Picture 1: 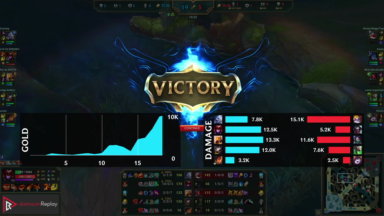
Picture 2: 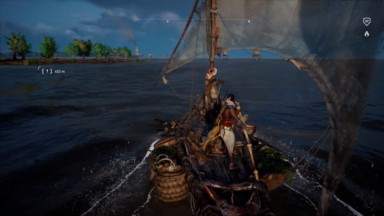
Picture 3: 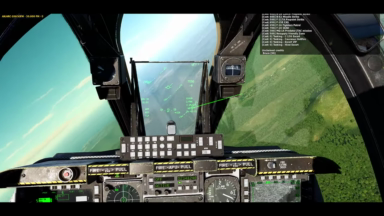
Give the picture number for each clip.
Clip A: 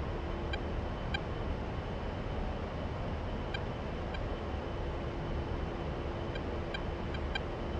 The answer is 3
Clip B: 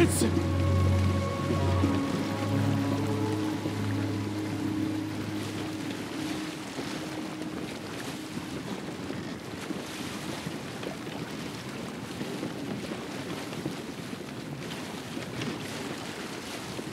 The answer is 2